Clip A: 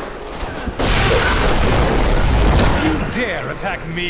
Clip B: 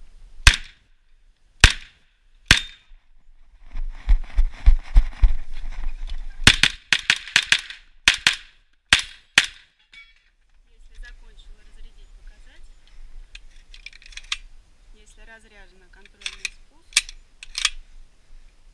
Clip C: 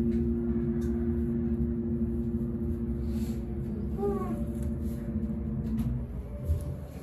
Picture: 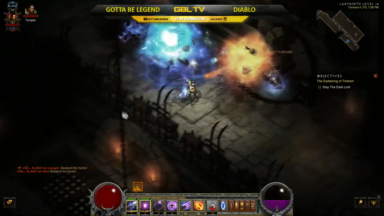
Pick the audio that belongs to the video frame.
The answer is A